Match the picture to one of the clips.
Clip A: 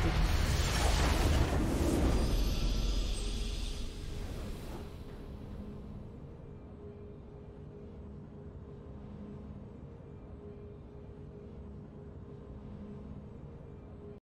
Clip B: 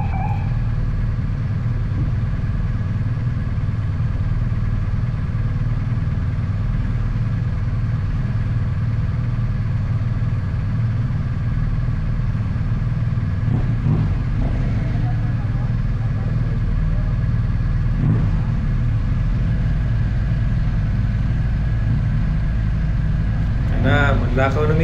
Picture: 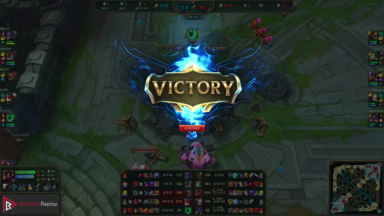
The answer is A